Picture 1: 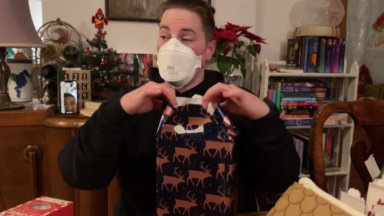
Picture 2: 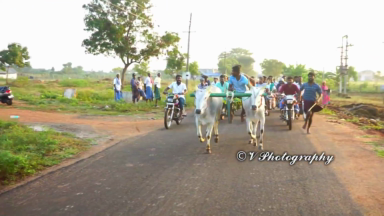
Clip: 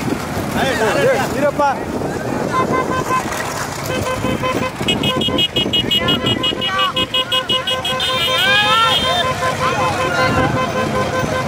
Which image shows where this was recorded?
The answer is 2